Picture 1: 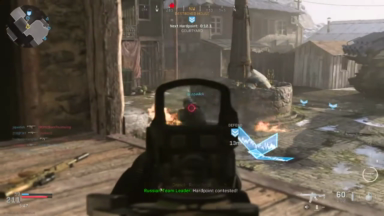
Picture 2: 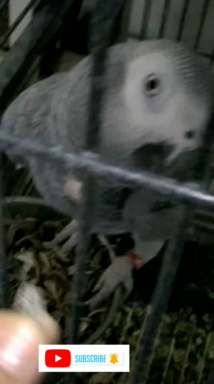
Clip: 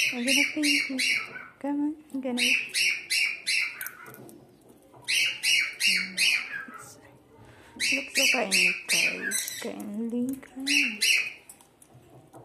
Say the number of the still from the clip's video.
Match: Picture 2